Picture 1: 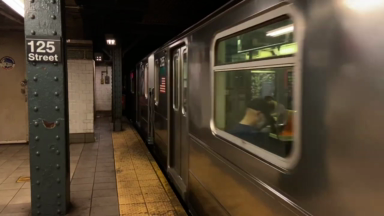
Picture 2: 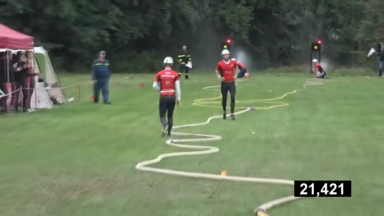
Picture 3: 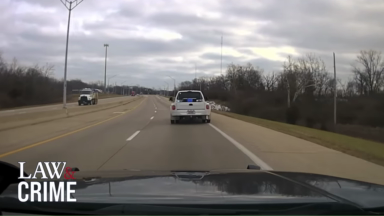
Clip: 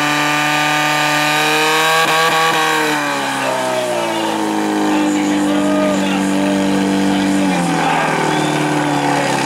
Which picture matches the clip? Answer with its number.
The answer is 2